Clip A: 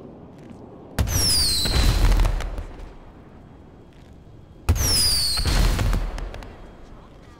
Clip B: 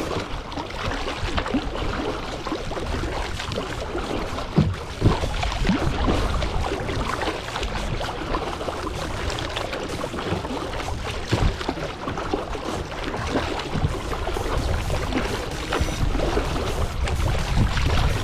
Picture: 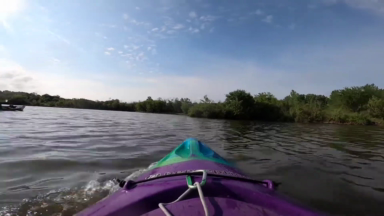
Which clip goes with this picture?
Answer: B